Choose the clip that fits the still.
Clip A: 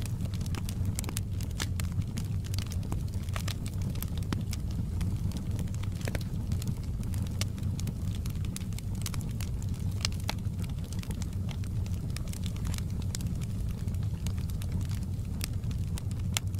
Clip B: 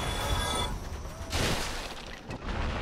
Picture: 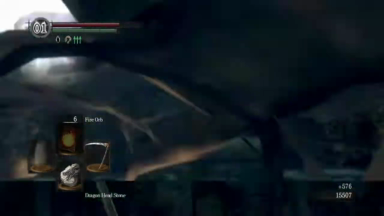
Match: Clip B